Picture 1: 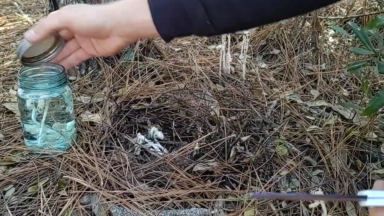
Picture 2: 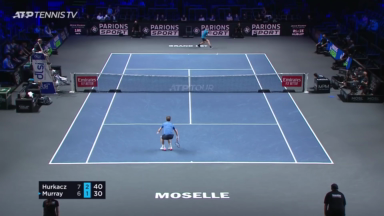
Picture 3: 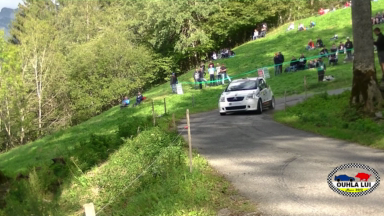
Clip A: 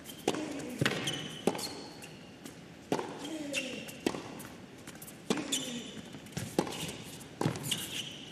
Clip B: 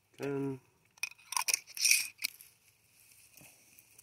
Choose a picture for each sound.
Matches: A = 2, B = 1